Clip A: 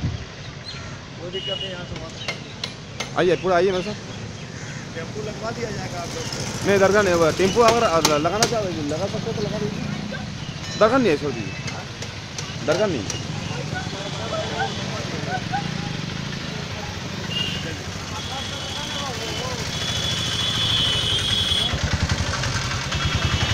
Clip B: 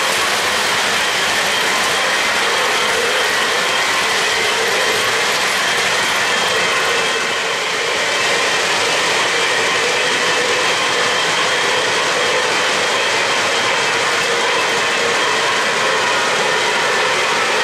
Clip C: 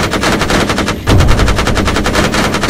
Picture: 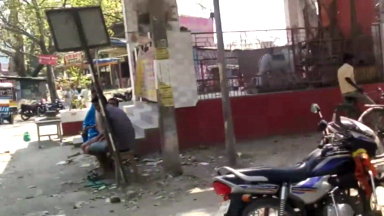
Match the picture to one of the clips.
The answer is A